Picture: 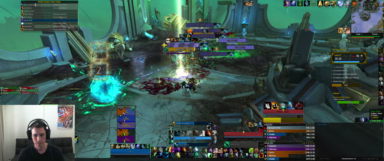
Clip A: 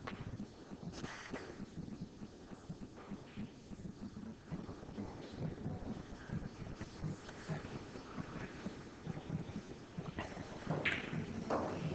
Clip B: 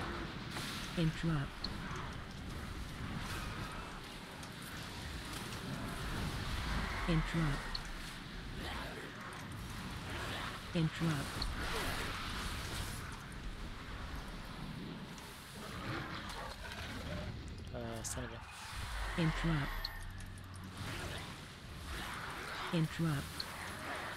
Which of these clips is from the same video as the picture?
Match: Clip B